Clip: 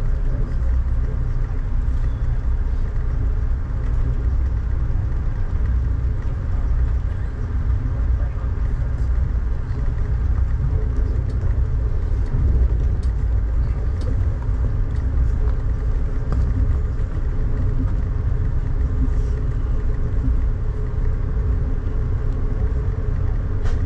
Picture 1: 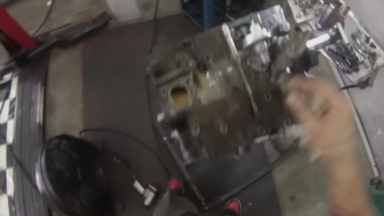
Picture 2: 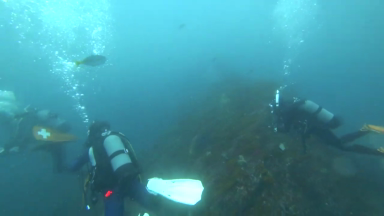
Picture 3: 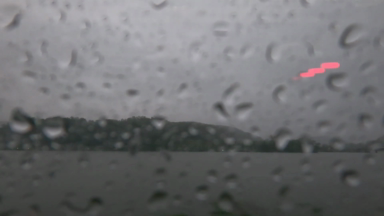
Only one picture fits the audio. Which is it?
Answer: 3